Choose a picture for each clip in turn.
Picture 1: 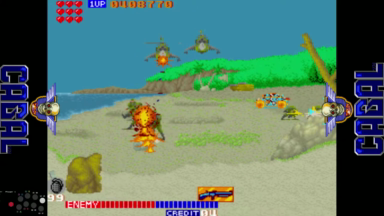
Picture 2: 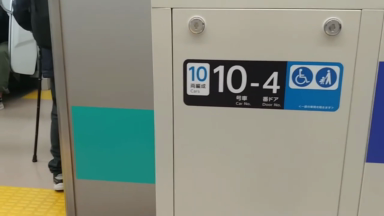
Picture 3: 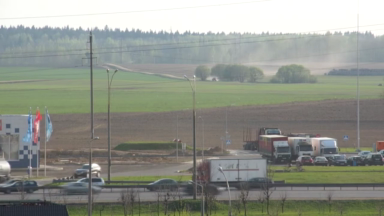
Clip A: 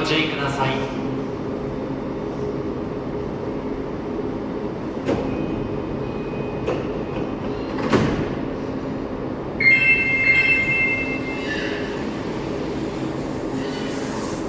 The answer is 2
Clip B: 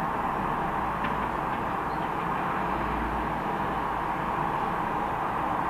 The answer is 3